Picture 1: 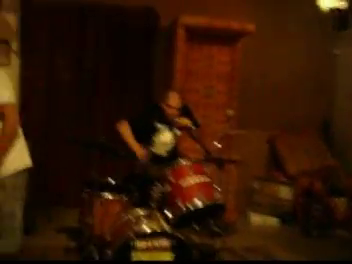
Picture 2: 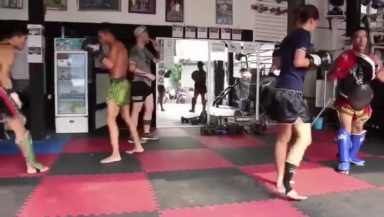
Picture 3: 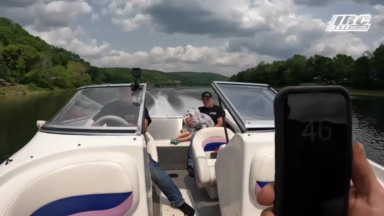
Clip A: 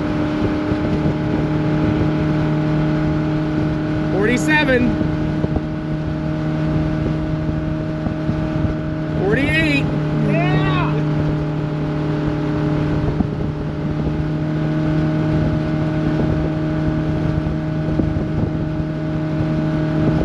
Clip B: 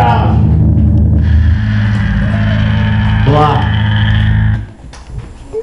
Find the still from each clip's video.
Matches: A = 3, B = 1